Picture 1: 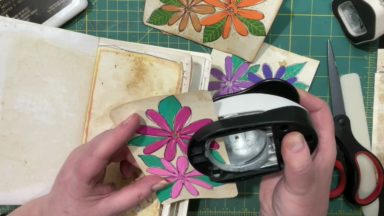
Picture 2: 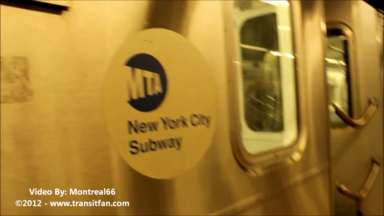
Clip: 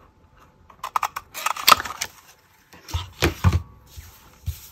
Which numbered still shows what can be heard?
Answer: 1